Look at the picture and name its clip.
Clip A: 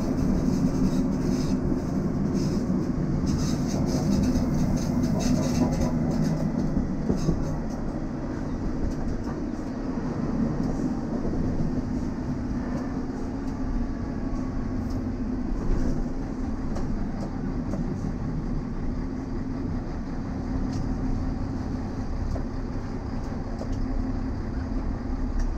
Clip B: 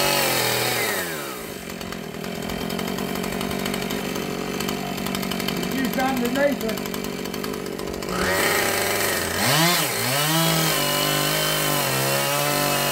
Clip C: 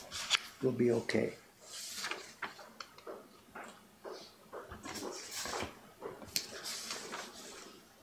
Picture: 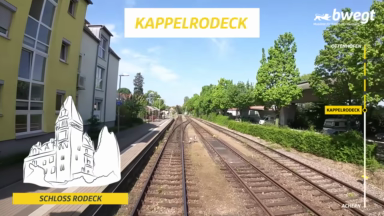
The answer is A